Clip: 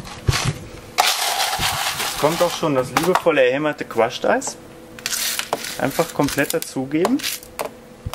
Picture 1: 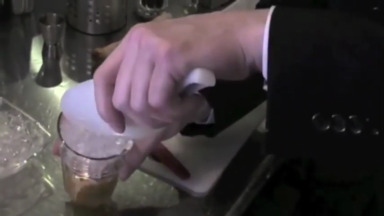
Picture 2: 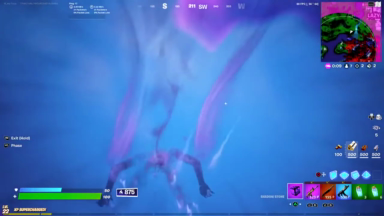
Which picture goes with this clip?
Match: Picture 1